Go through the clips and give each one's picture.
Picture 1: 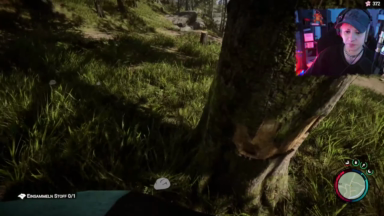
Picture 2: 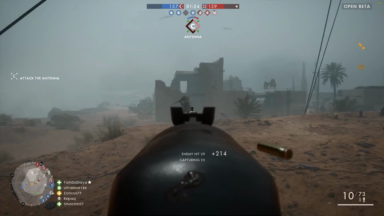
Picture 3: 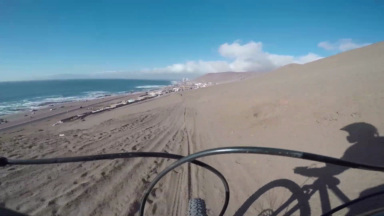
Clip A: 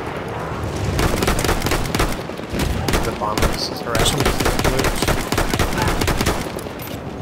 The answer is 2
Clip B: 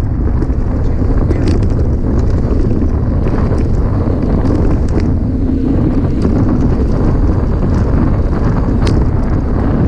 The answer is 3